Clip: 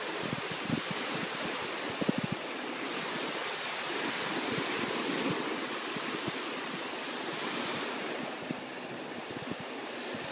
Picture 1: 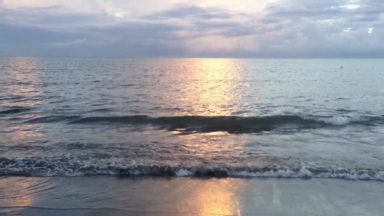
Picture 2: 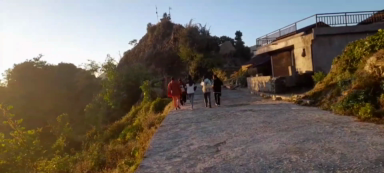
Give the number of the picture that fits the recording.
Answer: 1